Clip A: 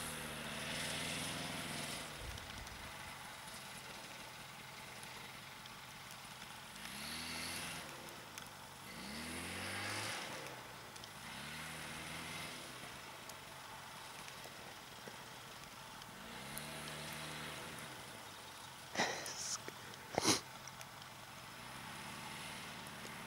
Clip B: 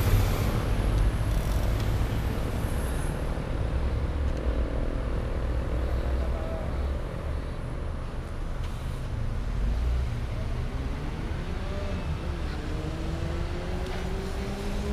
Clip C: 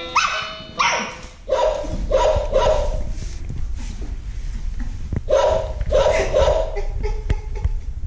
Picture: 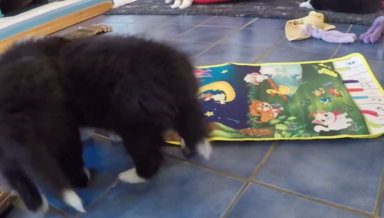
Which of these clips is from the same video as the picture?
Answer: C